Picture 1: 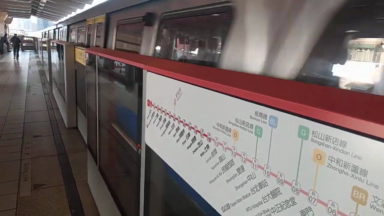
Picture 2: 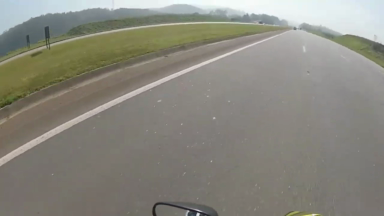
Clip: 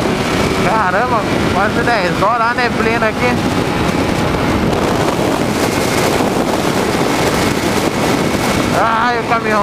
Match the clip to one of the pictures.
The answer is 2